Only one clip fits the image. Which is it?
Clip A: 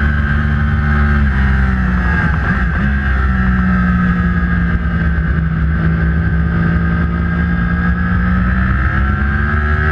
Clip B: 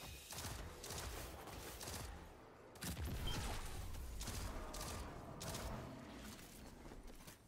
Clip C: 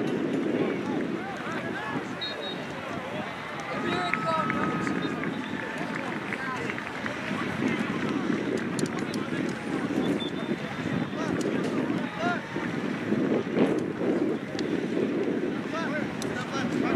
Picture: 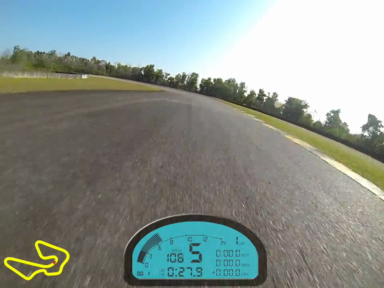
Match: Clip A